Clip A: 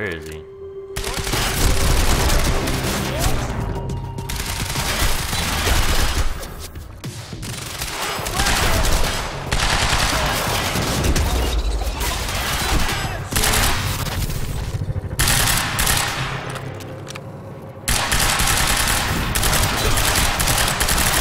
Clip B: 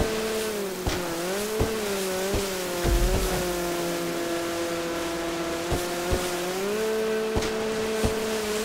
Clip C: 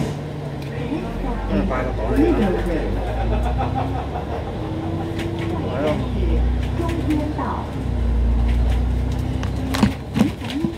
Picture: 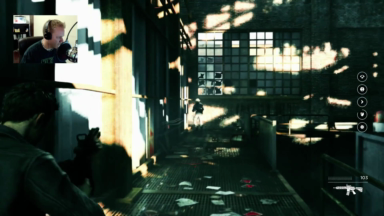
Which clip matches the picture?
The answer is A